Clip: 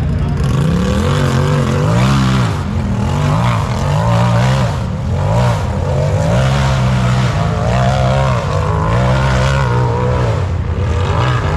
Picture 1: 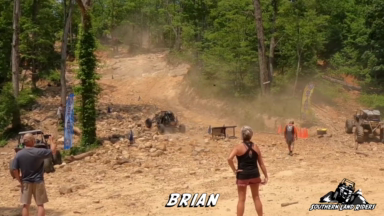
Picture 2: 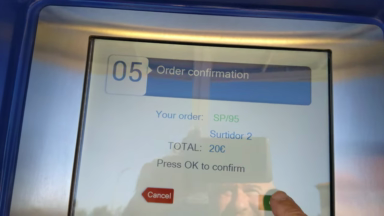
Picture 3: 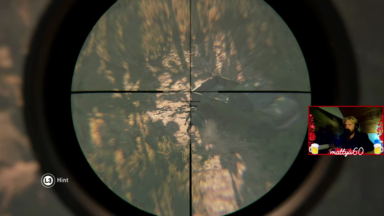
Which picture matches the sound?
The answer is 1